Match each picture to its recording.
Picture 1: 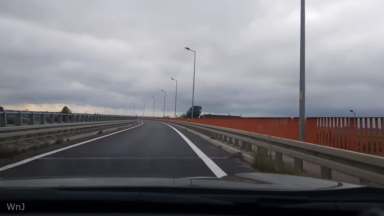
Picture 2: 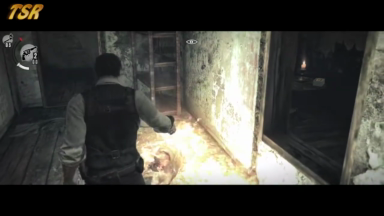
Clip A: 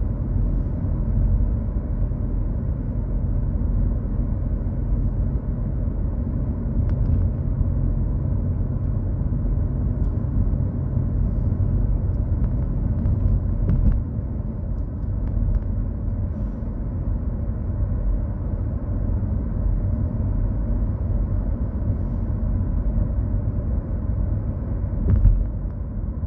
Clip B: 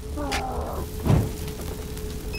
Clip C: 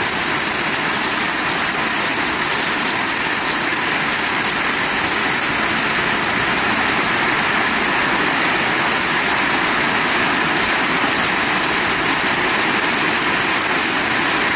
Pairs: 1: A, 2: B